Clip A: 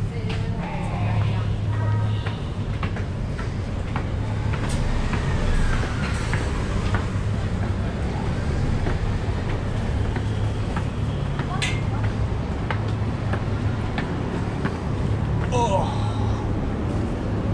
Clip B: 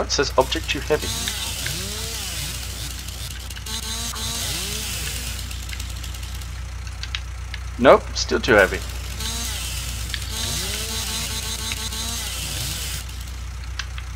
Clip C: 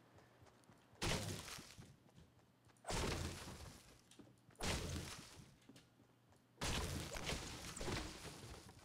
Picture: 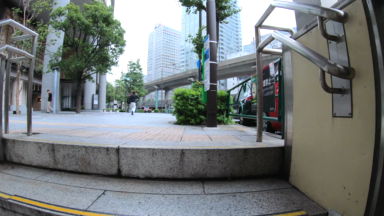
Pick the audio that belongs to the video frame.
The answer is A